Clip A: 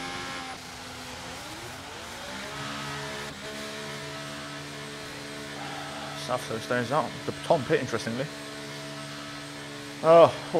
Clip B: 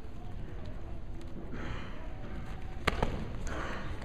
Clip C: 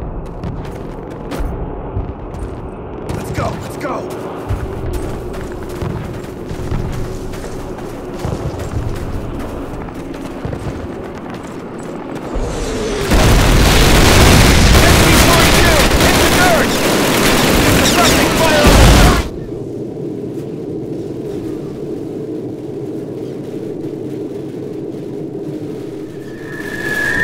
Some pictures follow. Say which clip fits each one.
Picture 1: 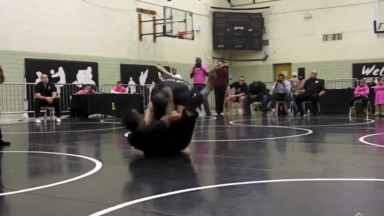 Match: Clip B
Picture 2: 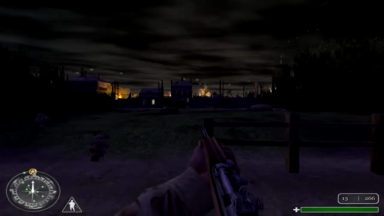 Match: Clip C